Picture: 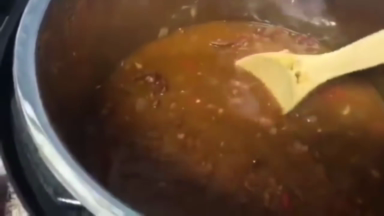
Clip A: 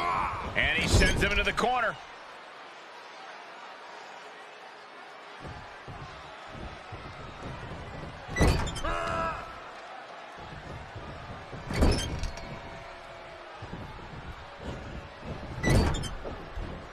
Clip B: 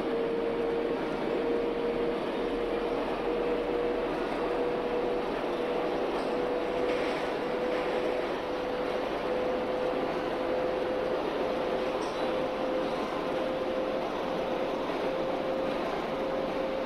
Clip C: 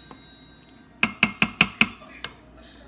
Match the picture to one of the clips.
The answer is C